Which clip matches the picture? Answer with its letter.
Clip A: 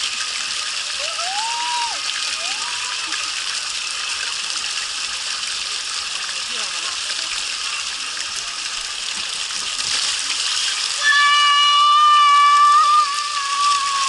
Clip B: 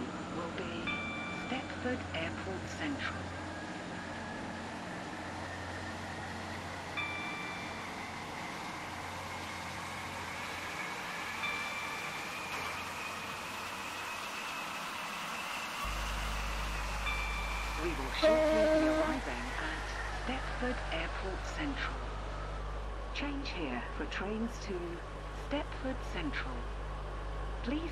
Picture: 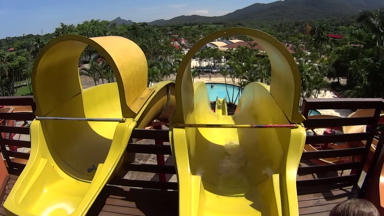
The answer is A